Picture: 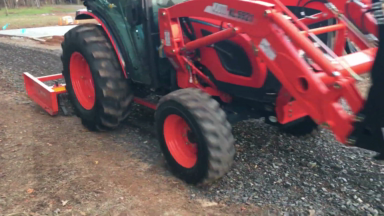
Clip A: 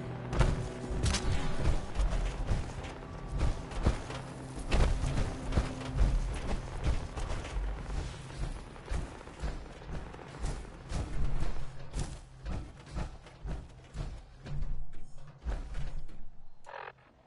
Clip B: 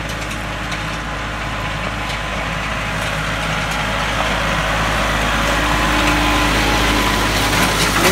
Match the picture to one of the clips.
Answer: B